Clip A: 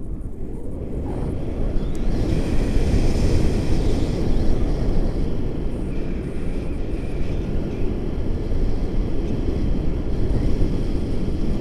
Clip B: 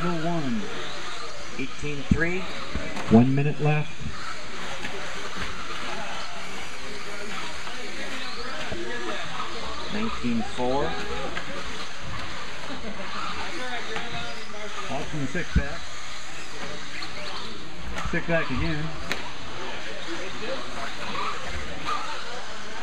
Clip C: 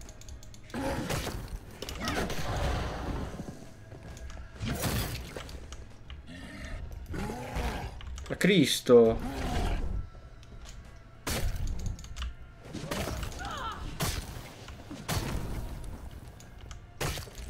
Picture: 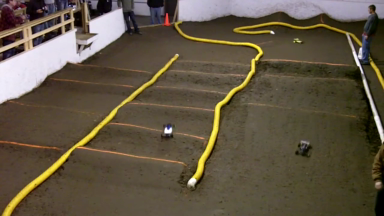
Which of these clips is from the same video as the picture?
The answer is B